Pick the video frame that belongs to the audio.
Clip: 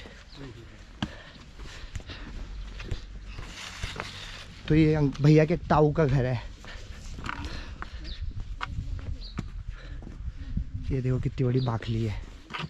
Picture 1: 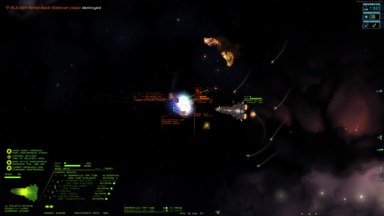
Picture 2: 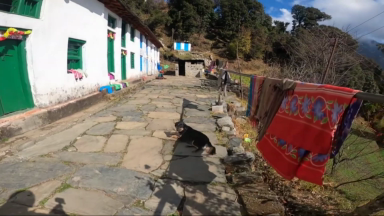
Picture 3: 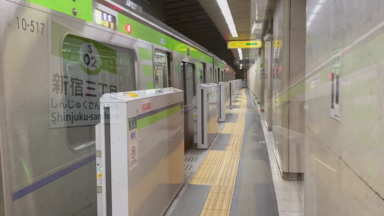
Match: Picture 2